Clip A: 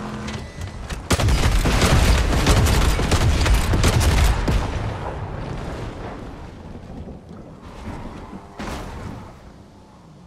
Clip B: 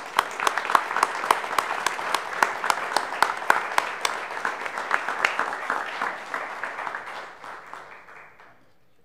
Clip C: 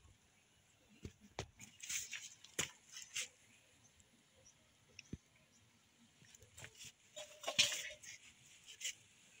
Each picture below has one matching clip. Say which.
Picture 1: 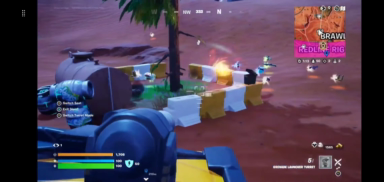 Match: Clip A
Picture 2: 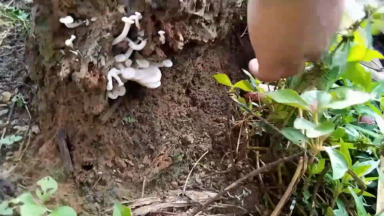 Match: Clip C